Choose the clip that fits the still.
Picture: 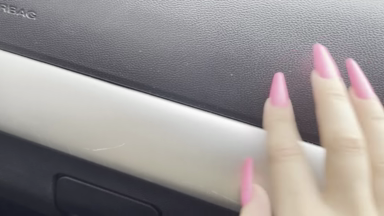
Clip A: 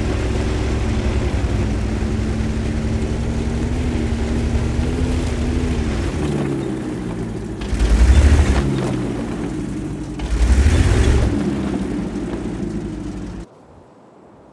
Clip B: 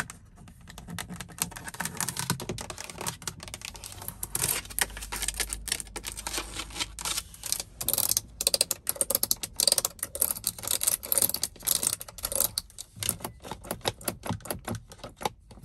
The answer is B